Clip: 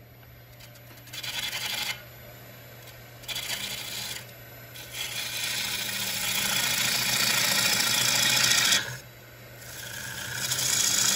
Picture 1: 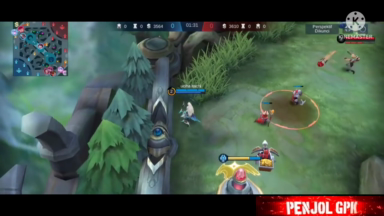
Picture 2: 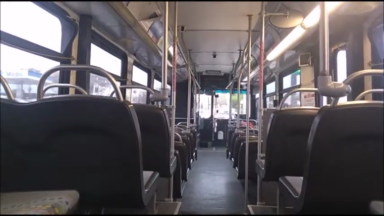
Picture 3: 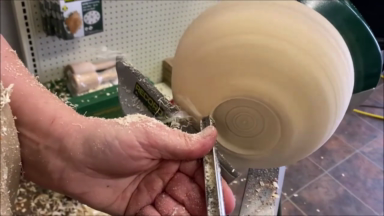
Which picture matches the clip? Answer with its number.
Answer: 3